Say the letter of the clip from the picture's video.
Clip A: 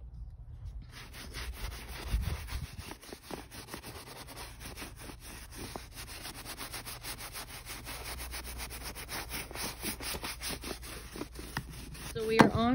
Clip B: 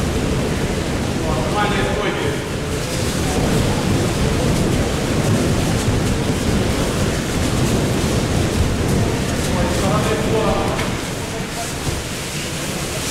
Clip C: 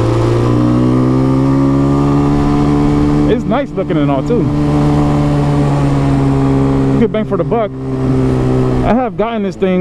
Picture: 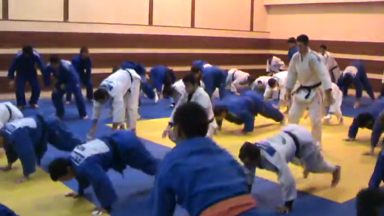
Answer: B